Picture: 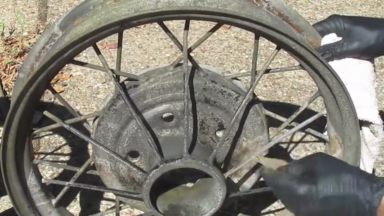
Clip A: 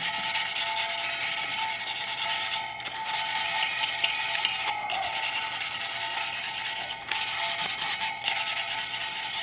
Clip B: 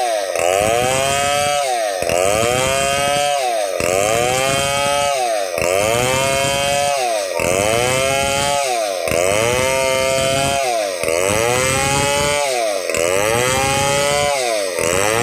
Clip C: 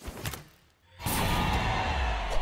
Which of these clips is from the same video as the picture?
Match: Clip A